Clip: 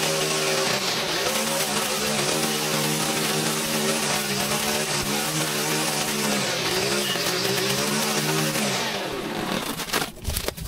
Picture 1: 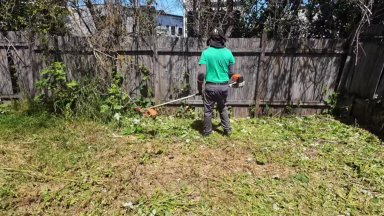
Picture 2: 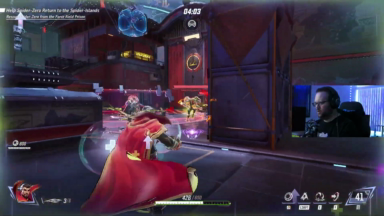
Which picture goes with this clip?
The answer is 1